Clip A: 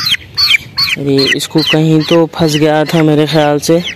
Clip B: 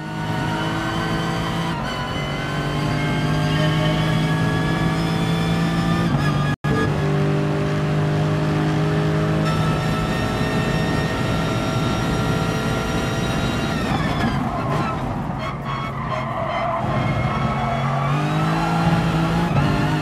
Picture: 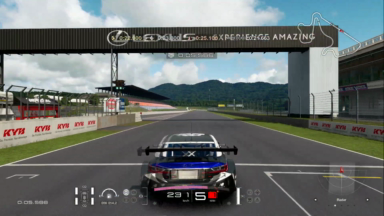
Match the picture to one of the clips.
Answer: B